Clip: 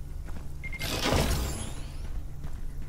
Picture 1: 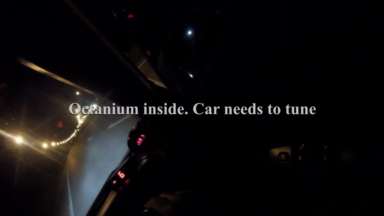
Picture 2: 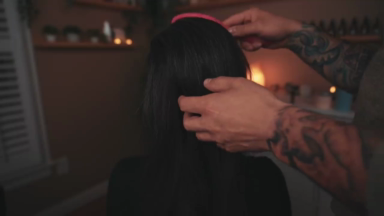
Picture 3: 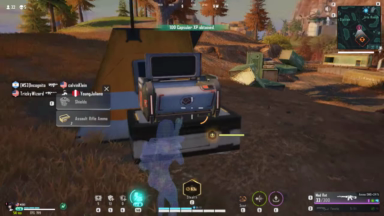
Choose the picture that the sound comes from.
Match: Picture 3